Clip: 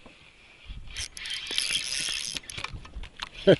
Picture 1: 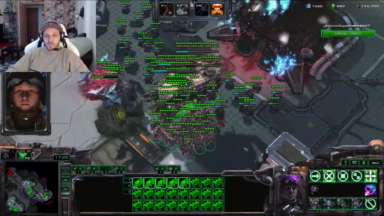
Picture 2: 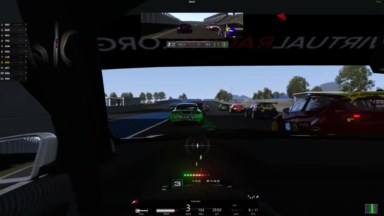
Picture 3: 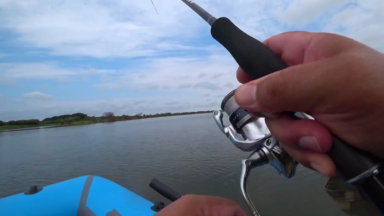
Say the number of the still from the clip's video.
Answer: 3